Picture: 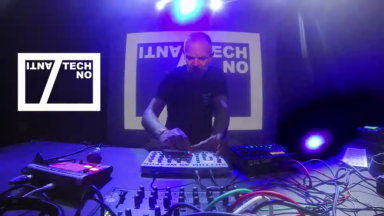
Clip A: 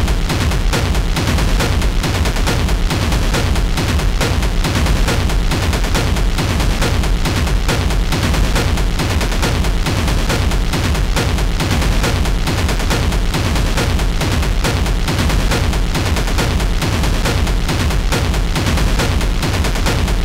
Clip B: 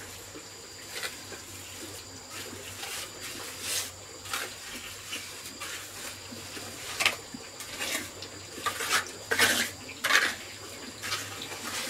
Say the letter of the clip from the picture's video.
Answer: A